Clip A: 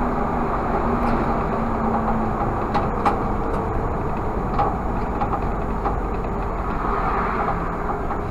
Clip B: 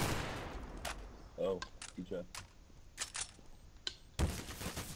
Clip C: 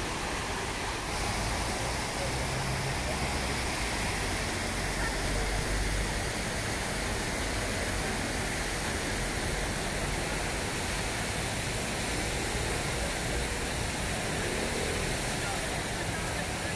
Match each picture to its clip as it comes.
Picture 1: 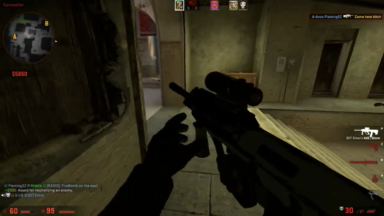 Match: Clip B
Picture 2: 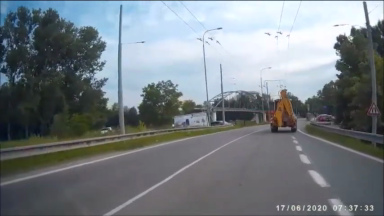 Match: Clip A